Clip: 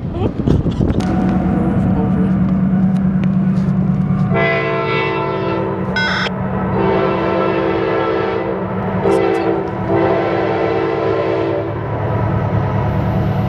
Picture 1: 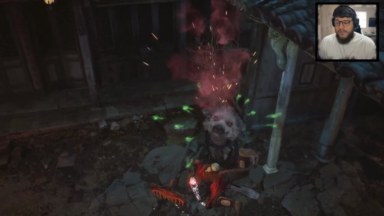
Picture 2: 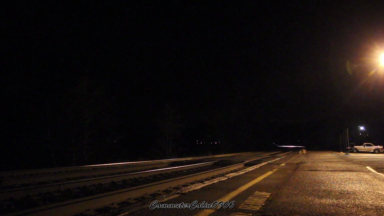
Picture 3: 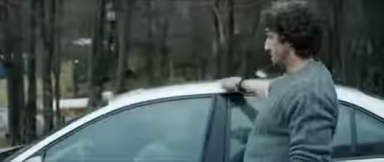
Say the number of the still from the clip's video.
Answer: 2